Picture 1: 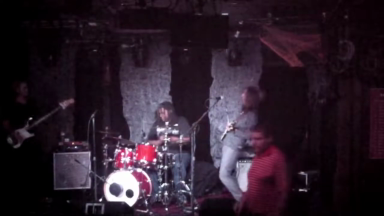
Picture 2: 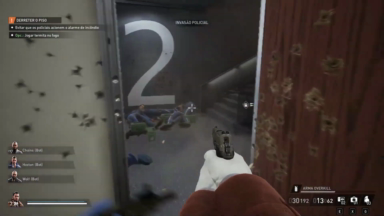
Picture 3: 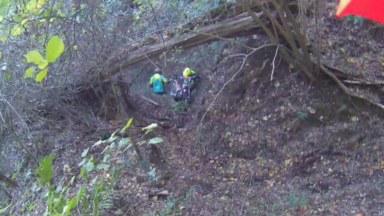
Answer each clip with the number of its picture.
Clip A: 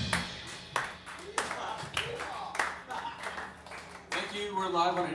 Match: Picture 1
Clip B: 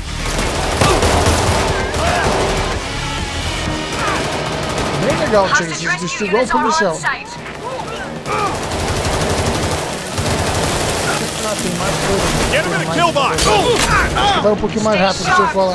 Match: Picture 2